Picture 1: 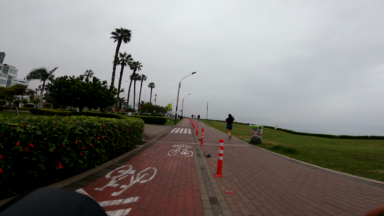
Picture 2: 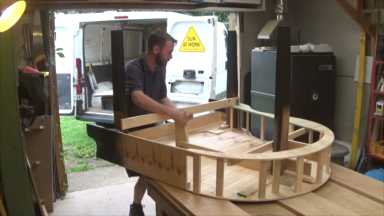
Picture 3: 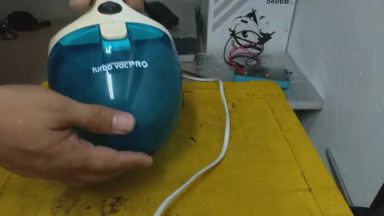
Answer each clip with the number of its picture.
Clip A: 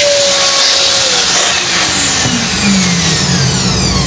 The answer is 3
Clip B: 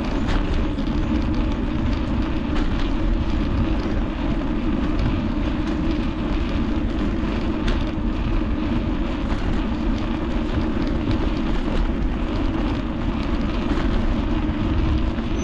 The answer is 1